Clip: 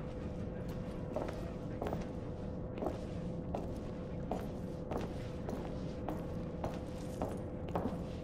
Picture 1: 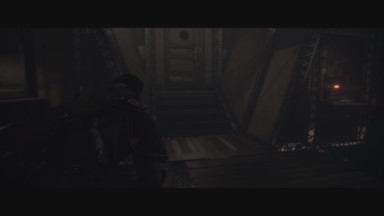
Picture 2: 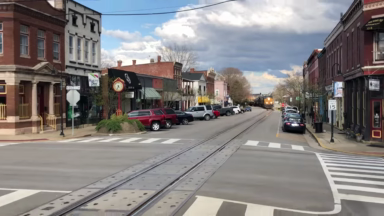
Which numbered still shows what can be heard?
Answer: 1